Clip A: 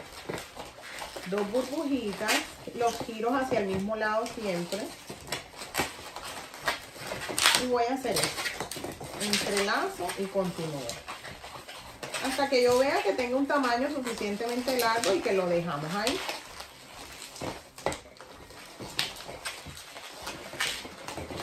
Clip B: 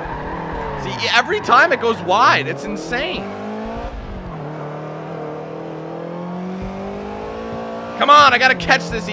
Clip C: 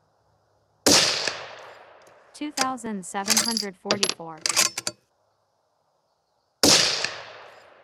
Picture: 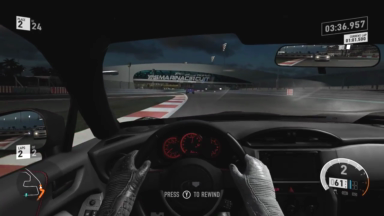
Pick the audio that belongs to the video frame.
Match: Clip B